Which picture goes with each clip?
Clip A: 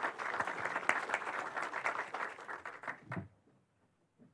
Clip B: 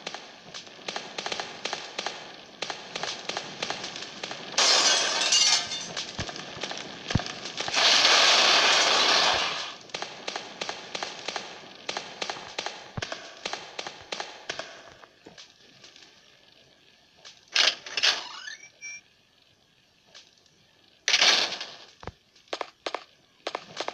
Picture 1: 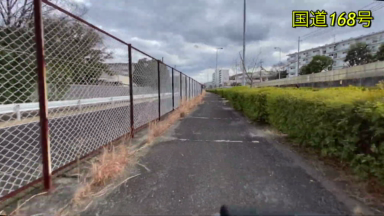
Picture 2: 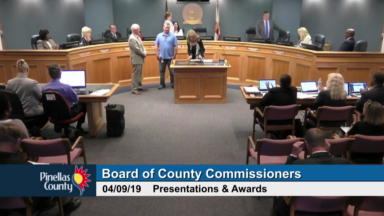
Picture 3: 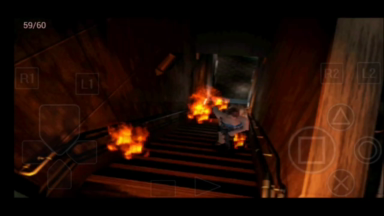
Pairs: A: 2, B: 3